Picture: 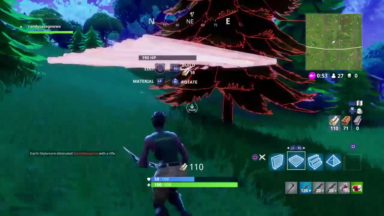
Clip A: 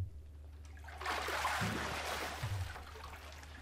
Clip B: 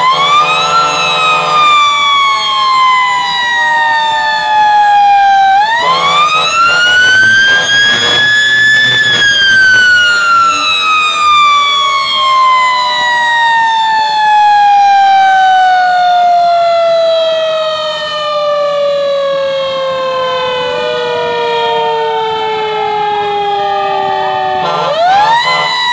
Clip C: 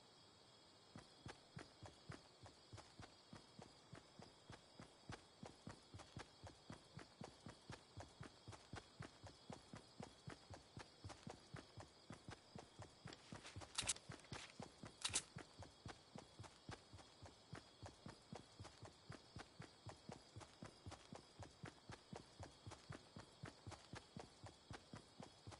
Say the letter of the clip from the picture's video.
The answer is C